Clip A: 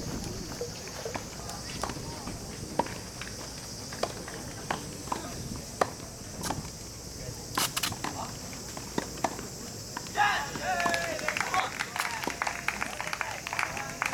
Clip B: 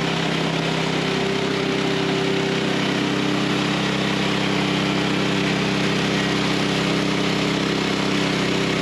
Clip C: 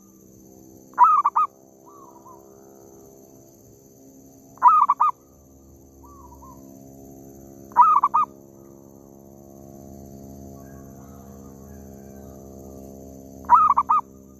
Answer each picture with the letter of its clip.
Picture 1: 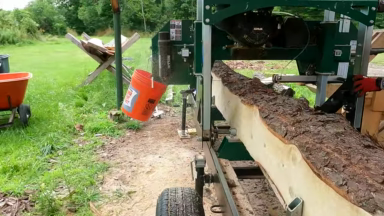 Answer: B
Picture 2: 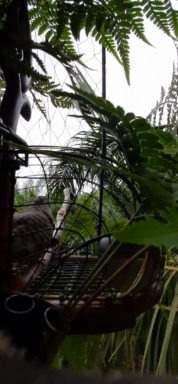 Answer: C